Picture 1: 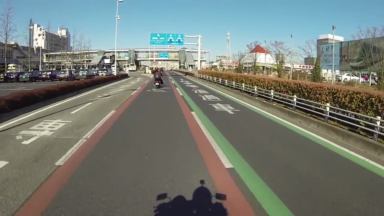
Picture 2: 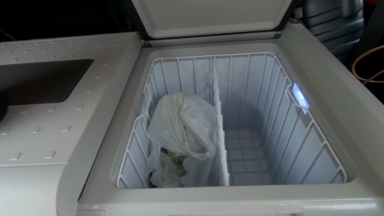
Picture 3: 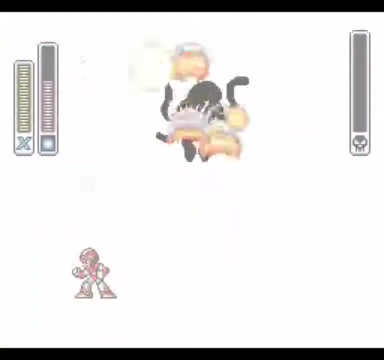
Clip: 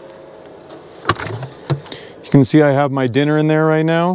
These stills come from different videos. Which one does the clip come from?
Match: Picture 2